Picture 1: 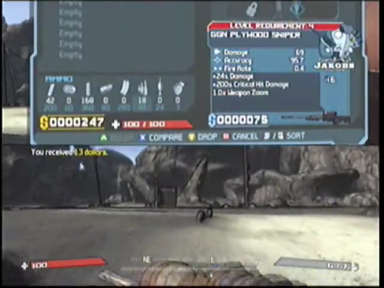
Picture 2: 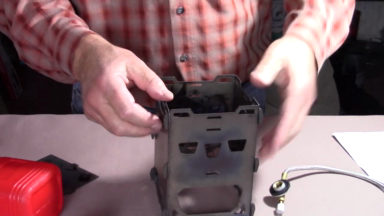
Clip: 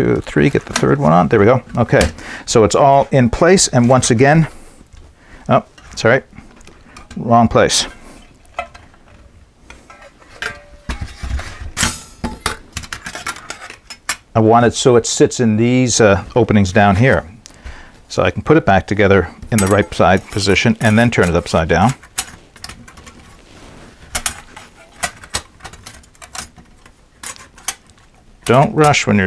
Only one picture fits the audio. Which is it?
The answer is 2